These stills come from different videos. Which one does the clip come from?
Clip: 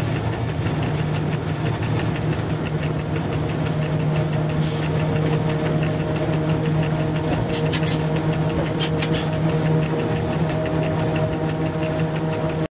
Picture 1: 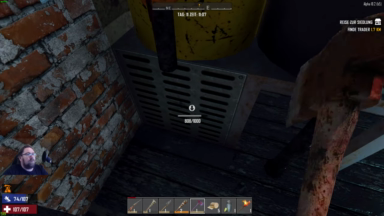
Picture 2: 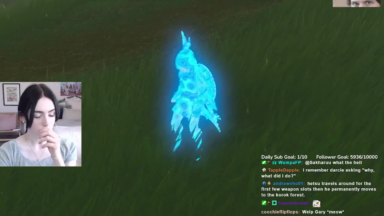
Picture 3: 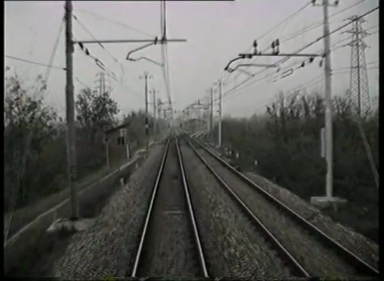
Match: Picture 3